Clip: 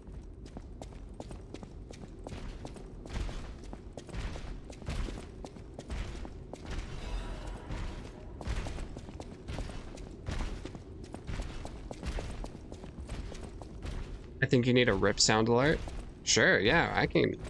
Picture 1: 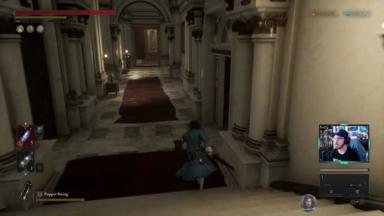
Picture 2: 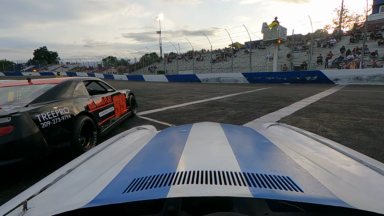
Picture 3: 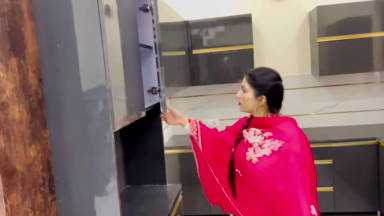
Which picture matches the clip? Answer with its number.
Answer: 1